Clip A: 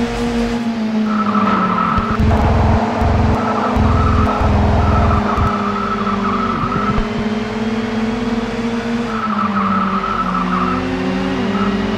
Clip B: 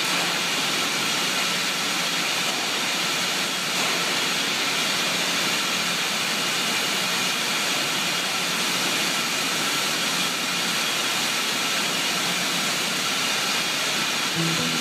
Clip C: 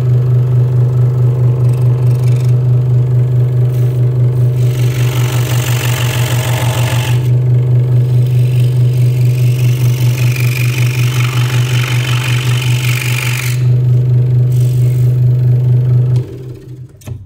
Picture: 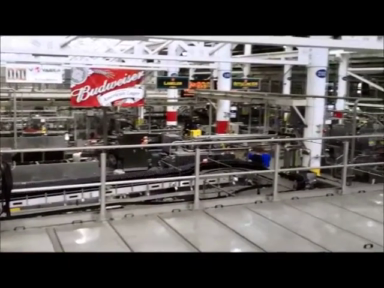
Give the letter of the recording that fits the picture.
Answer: B